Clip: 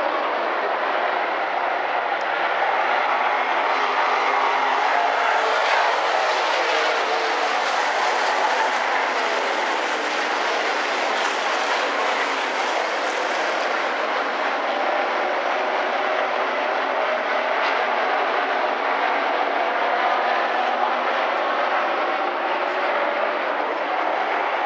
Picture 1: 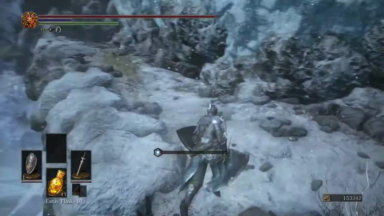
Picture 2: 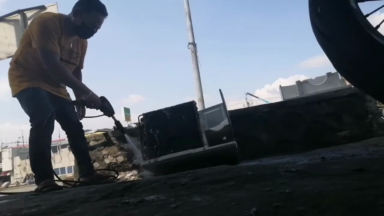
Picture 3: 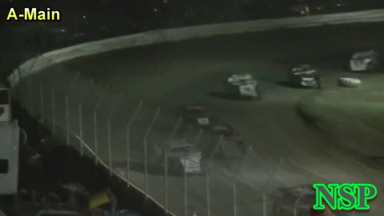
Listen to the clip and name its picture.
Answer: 3